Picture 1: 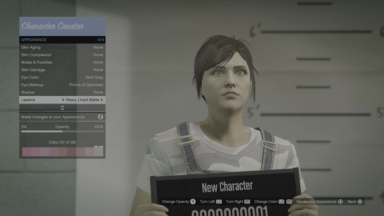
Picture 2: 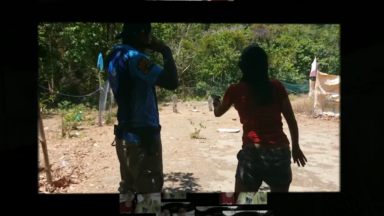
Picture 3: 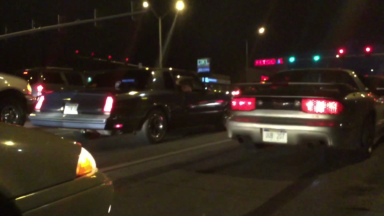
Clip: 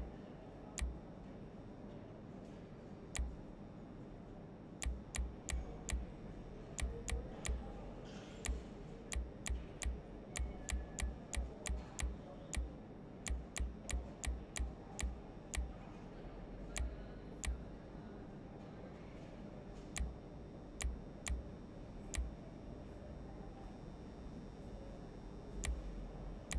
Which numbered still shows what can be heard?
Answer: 1